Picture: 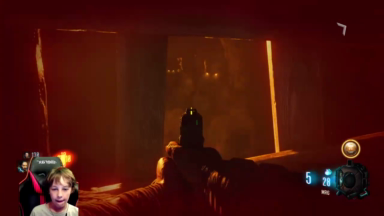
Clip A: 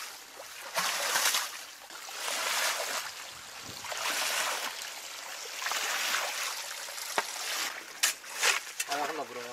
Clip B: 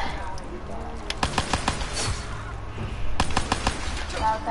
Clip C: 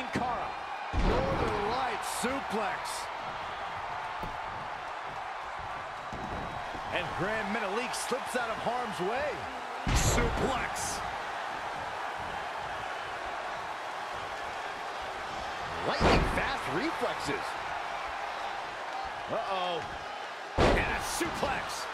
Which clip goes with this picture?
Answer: B